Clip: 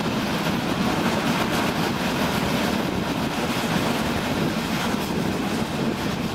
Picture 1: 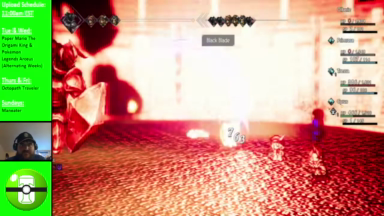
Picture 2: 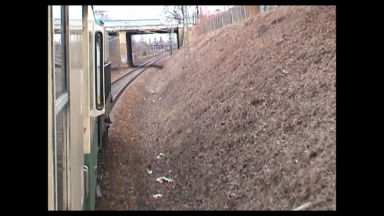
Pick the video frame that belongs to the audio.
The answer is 2